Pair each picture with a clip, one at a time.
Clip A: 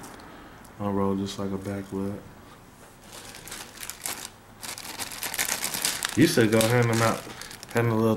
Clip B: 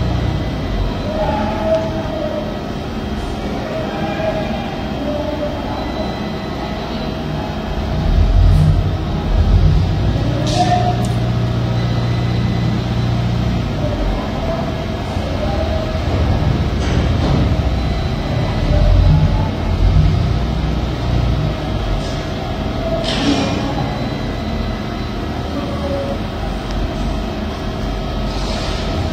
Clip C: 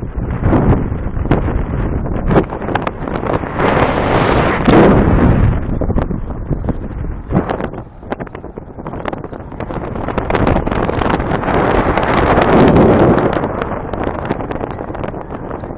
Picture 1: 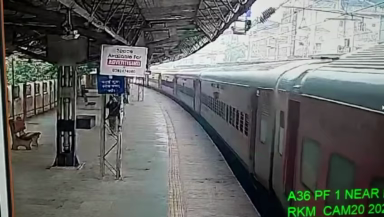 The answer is B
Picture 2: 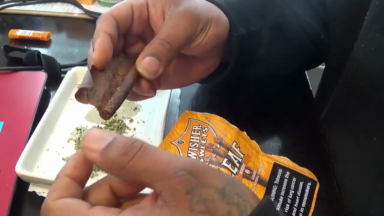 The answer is A